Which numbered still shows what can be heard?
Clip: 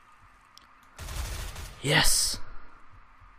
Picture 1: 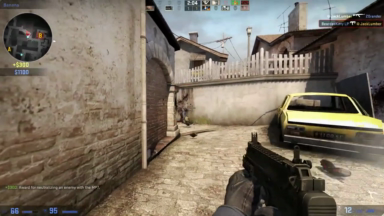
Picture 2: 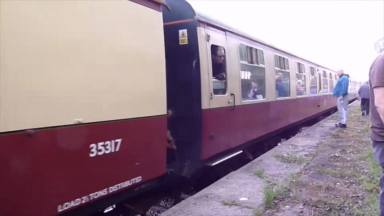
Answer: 1